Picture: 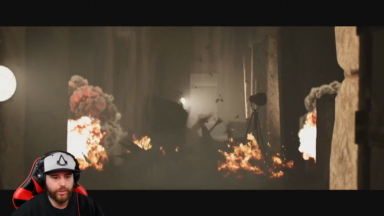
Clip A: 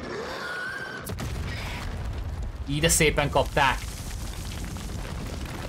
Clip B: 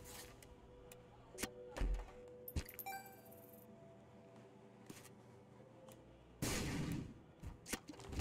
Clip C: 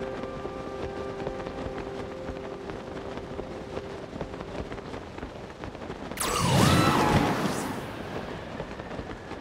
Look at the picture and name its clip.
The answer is A